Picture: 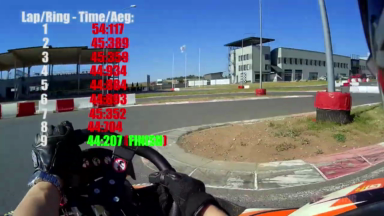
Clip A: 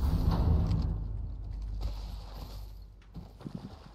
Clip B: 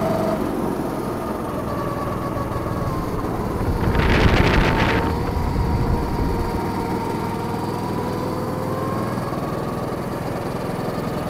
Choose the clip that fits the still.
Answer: B